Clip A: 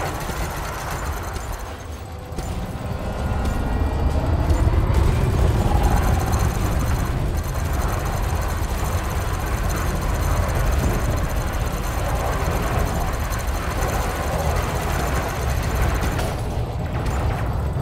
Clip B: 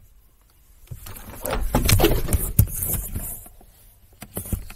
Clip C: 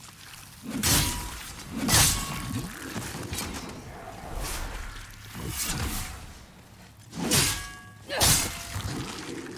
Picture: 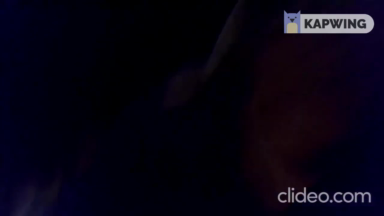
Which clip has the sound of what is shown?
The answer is B